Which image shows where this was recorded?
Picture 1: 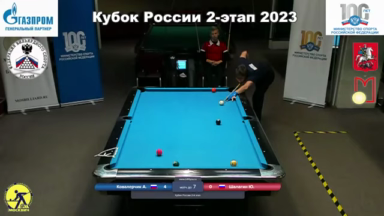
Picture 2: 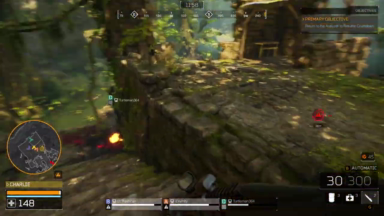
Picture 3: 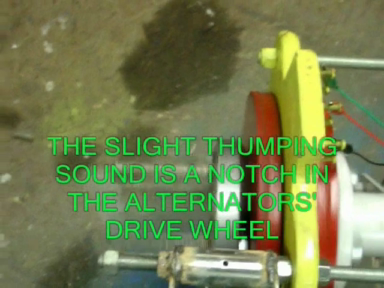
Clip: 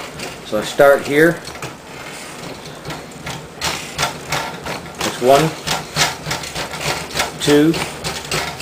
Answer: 3